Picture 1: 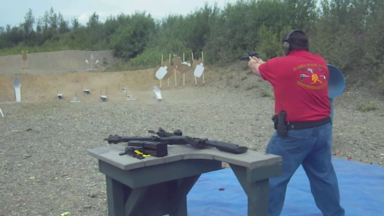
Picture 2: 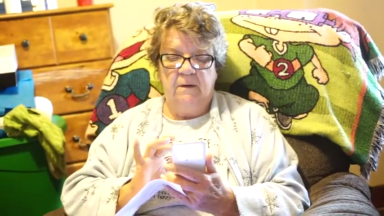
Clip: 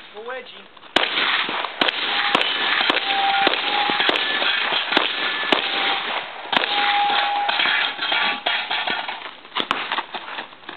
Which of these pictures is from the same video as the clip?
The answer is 1